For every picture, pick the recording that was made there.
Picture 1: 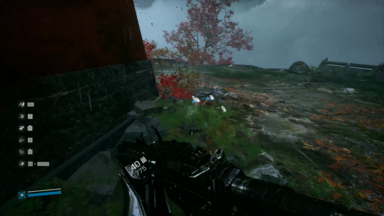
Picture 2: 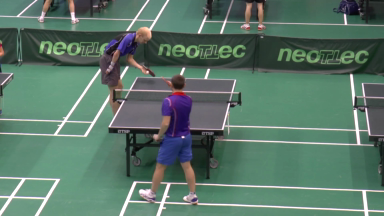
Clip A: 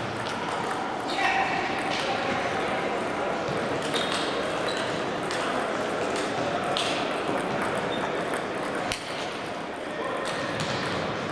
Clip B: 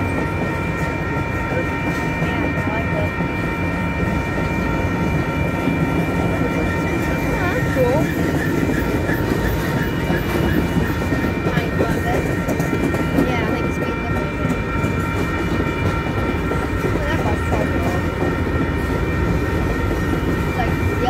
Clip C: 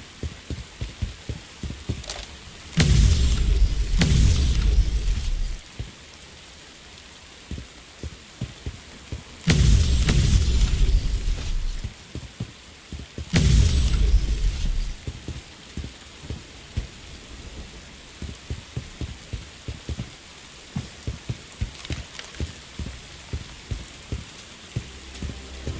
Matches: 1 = C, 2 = A